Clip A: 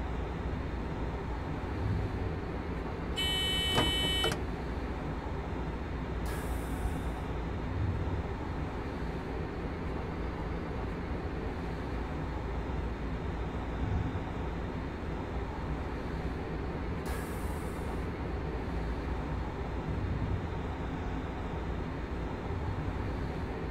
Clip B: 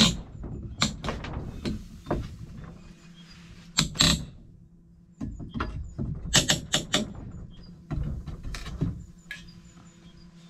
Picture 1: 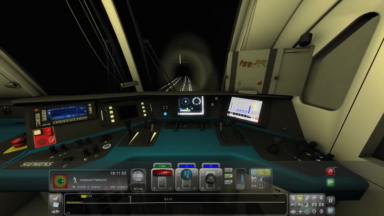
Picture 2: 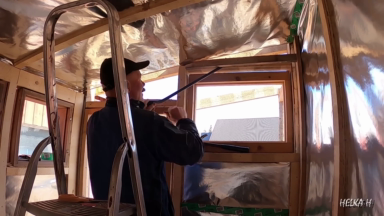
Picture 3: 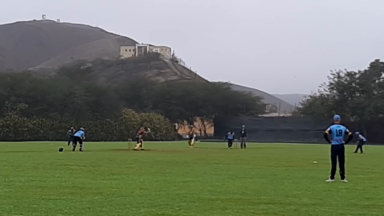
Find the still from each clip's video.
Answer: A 1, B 2